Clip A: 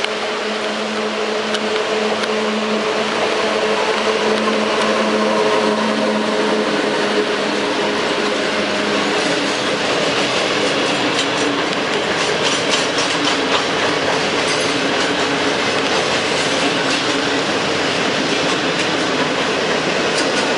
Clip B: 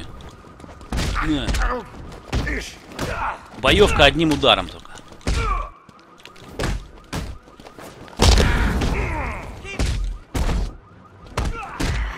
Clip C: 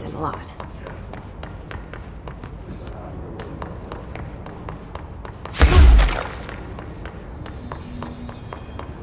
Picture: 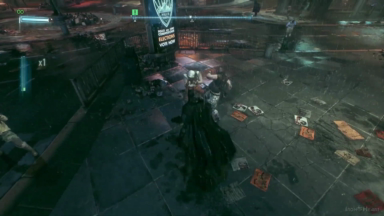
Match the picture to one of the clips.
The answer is B